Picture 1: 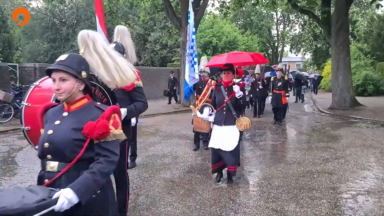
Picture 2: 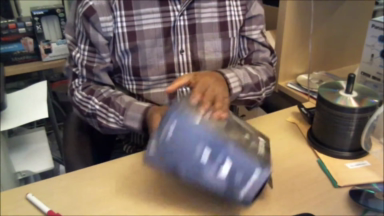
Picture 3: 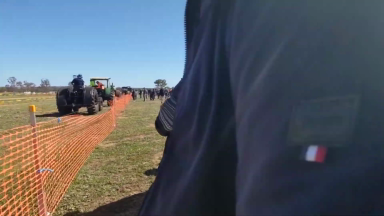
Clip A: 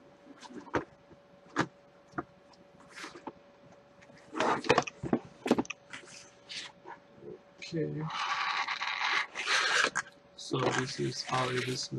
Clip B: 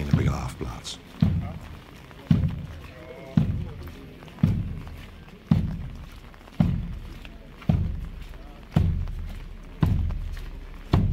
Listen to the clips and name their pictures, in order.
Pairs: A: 2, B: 1